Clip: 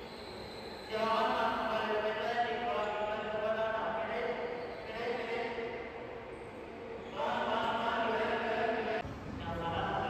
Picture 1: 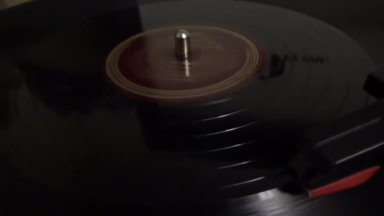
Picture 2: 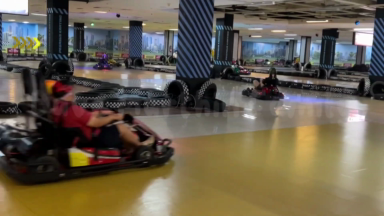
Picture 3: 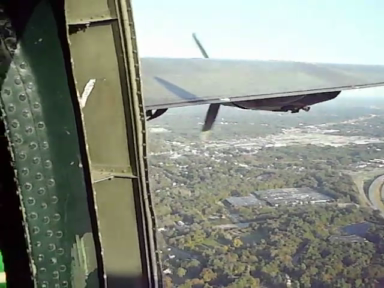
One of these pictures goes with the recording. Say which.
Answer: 2